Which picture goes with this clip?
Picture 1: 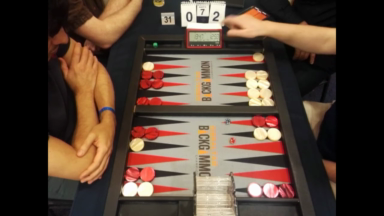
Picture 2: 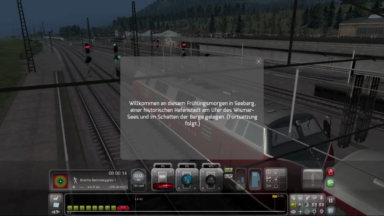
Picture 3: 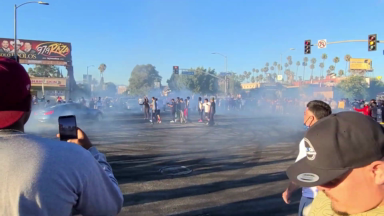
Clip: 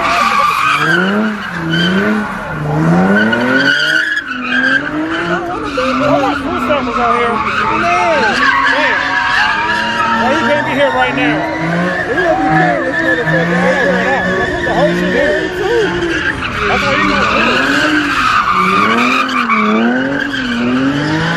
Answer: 3